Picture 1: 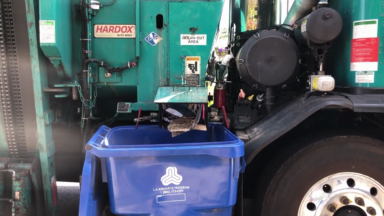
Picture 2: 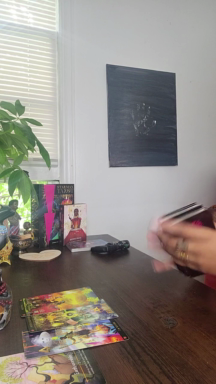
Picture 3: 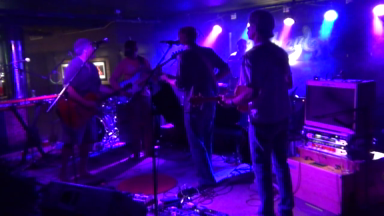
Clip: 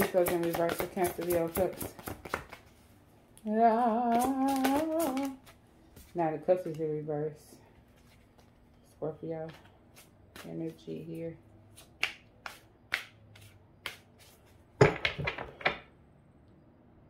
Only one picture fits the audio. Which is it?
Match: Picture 2